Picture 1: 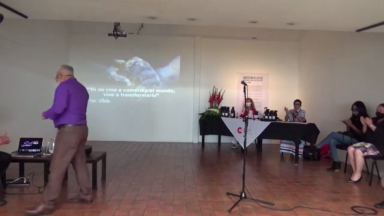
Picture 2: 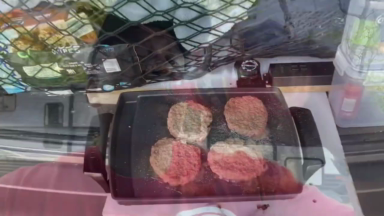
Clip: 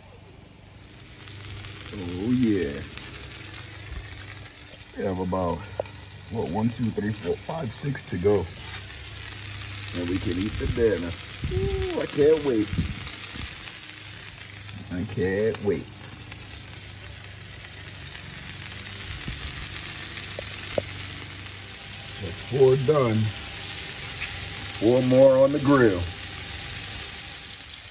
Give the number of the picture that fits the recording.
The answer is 2